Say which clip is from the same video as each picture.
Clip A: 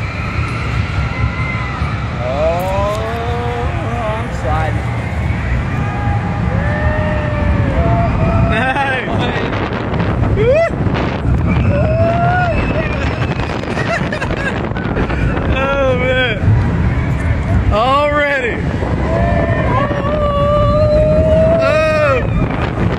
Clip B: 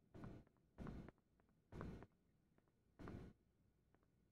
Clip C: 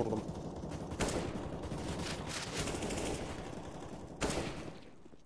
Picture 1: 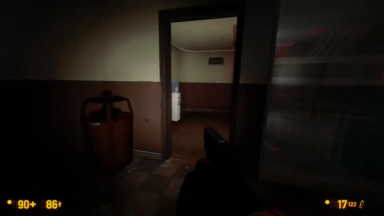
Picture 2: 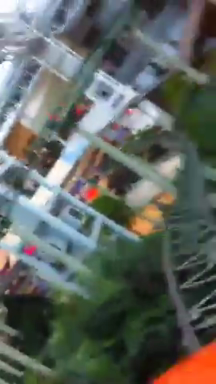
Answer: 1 B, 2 A